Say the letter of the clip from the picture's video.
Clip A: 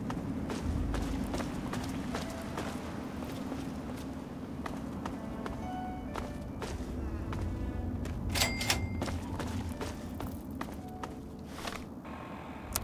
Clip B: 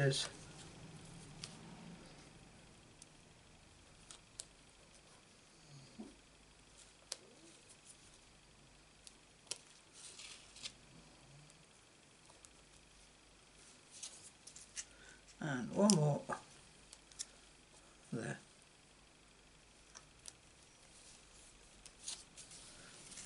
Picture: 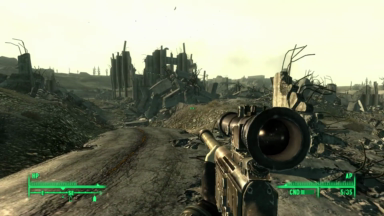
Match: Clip A